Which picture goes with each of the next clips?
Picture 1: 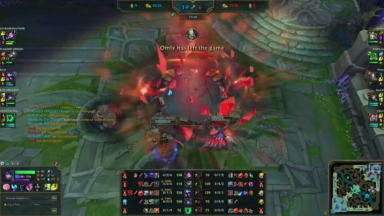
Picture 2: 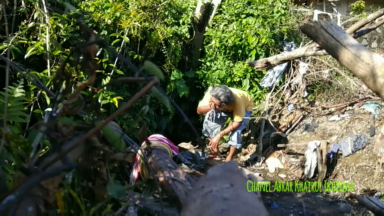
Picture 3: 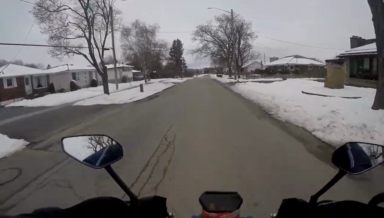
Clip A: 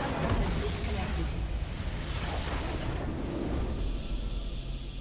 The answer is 1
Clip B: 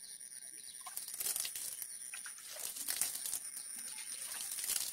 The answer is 2